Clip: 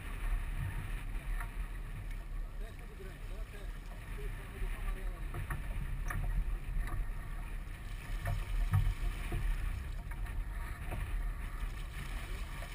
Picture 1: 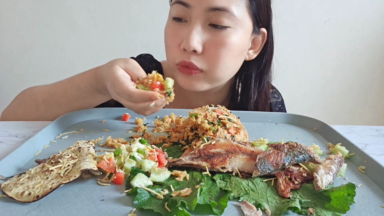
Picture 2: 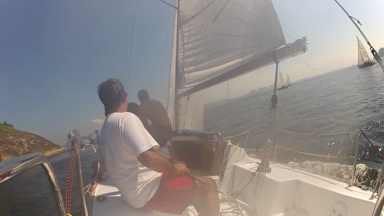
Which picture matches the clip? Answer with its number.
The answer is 2